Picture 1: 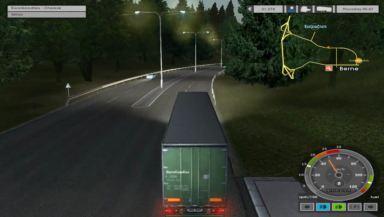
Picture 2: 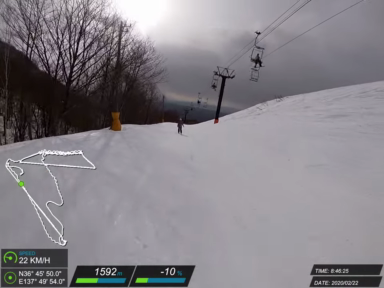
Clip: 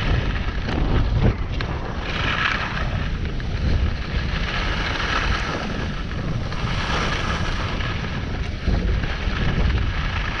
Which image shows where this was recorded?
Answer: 2